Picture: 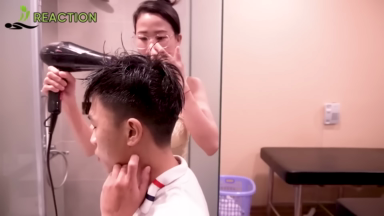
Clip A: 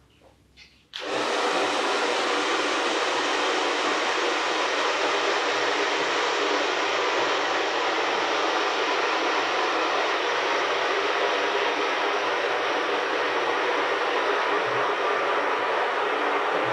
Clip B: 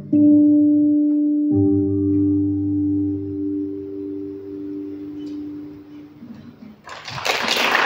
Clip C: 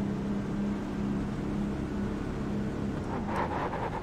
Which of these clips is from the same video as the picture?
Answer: A